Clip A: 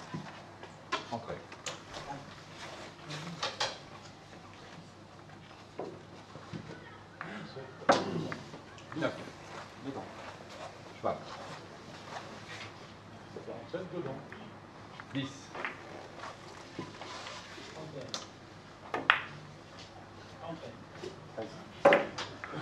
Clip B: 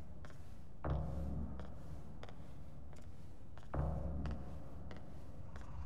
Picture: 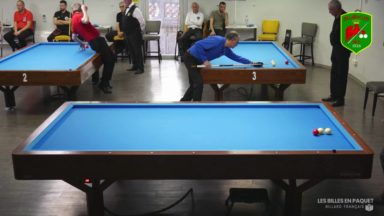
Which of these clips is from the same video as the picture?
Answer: A